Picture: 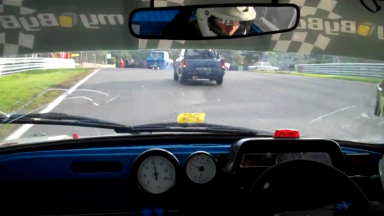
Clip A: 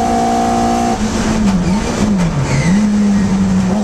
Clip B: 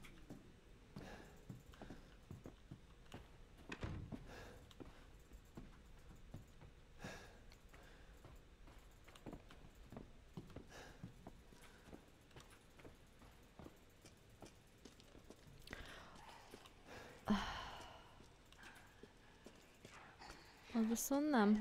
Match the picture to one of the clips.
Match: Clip A